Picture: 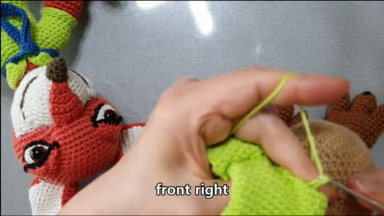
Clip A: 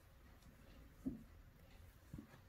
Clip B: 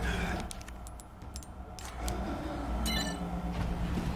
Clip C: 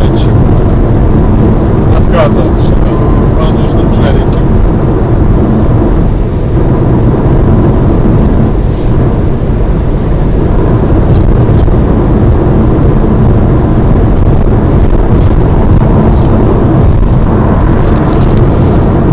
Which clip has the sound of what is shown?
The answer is A